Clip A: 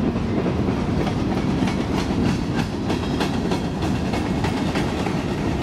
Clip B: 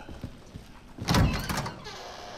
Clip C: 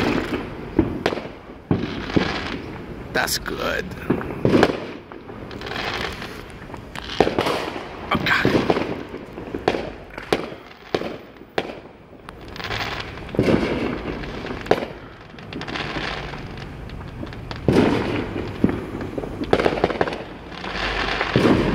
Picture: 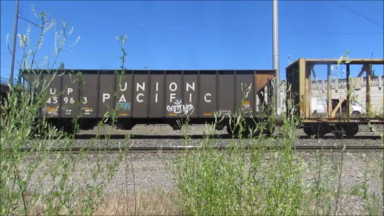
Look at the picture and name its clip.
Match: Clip A